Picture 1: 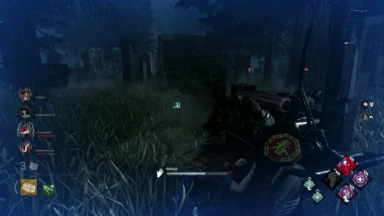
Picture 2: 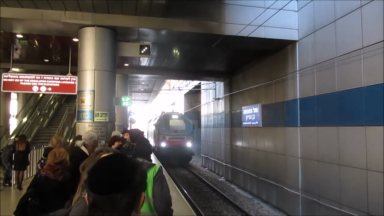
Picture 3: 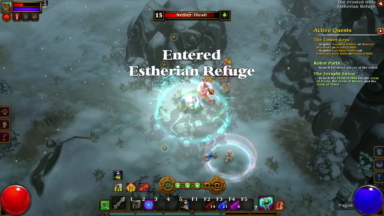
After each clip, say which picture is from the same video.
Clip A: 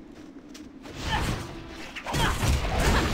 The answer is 3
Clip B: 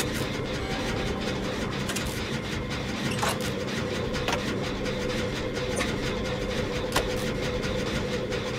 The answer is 1